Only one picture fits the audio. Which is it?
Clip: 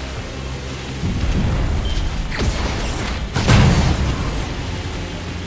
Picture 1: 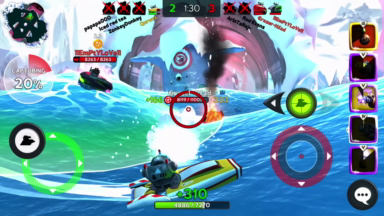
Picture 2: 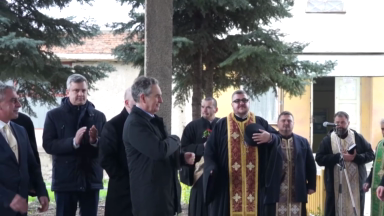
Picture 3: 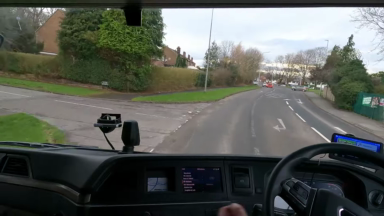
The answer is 1